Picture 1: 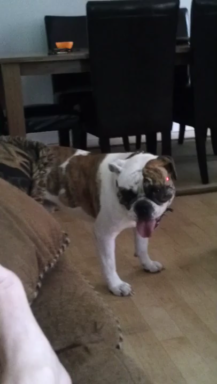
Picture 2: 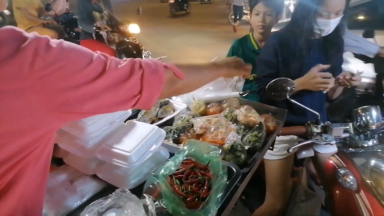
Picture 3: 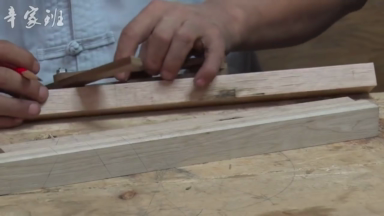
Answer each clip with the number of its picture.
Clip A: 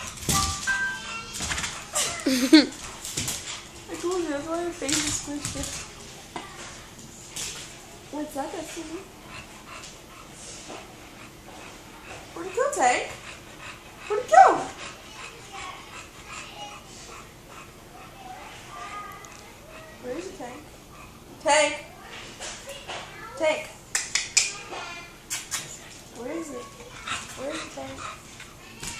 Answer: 1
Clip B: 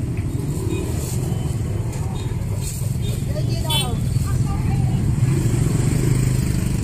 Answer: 2